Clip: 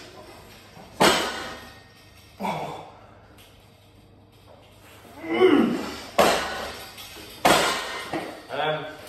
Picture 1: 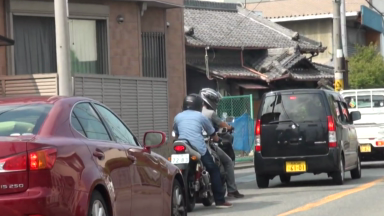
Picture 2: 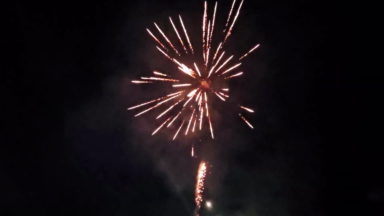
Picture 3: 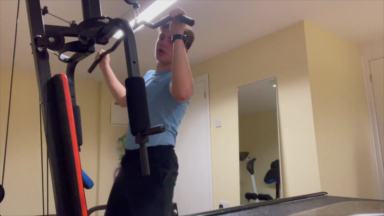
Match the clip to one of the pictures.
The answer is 3